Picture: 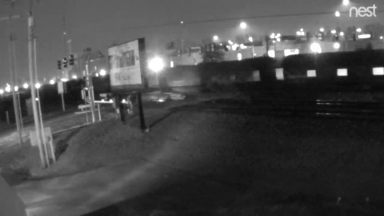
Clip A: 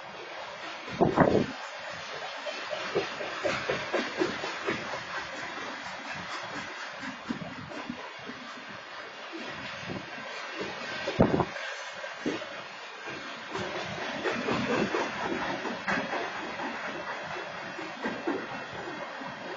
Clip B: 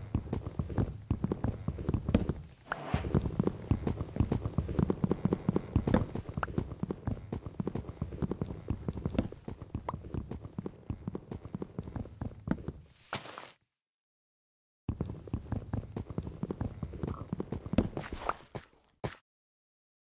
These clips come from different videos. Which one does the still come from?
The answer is A